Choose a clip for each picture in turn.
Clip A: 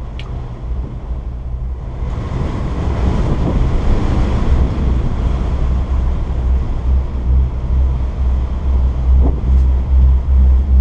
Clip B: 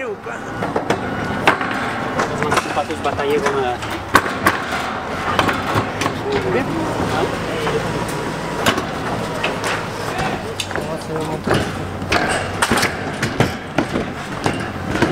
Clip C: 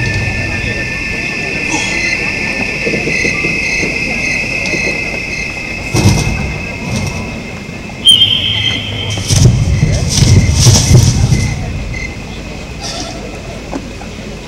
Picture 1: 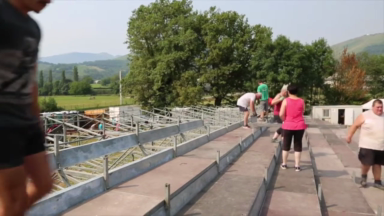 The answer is B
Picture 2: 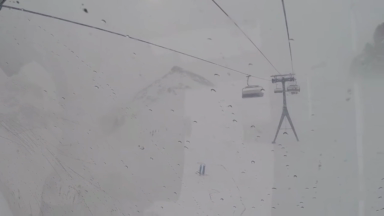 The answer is A